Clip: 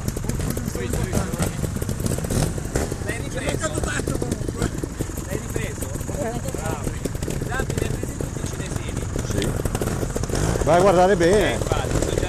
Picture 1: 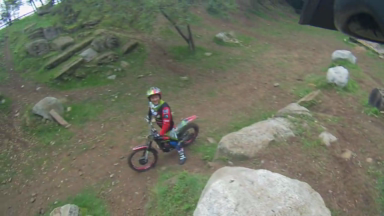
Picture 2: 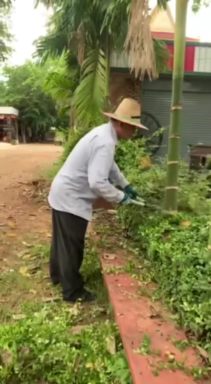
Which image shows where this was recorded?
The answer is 1